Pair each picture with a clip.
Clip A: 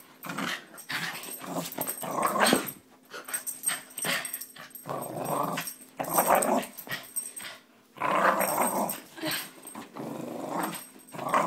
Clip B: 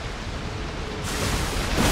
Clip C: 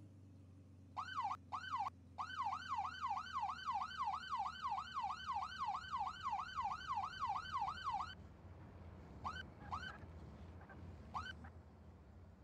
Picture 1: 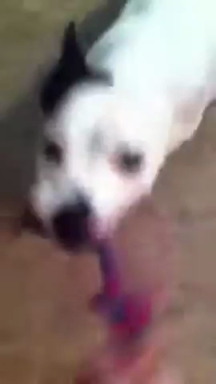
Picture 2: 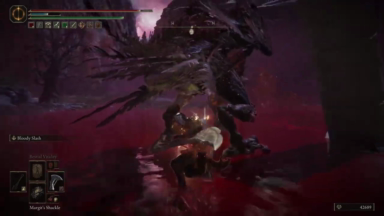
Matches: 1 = A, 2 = B